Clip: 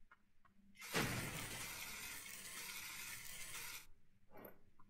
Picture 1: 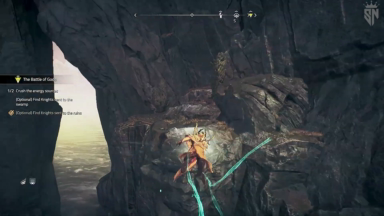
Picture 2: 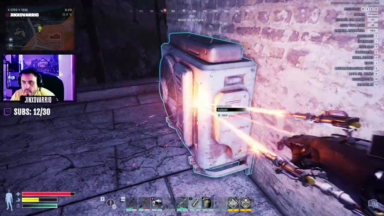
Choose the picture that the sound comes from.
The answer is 2